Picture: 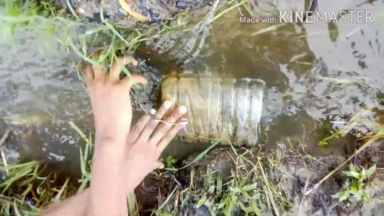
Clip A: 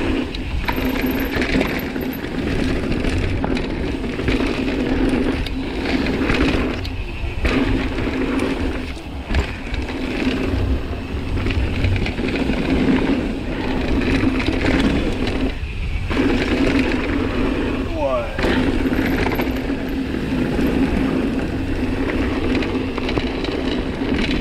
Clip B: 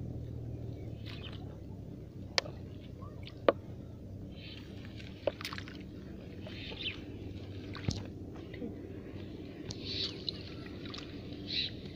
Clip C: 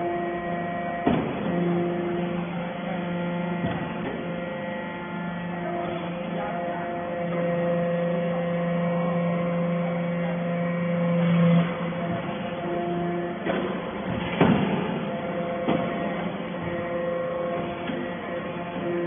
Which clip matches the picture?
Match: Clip B